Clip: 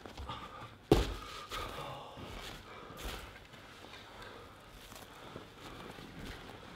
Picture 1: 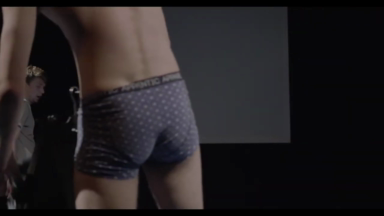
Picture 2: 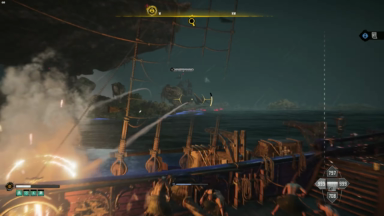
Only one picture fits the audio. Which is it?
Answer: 1